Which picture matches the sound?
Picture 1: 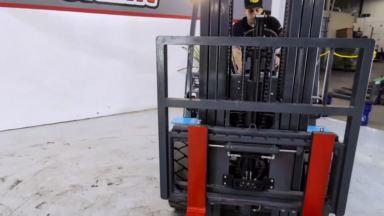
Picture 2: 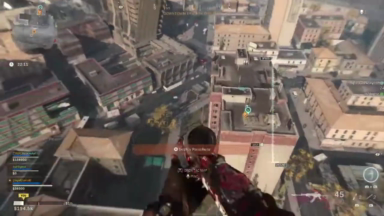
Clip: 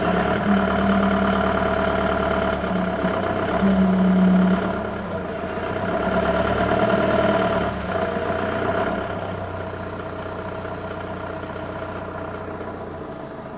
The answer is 1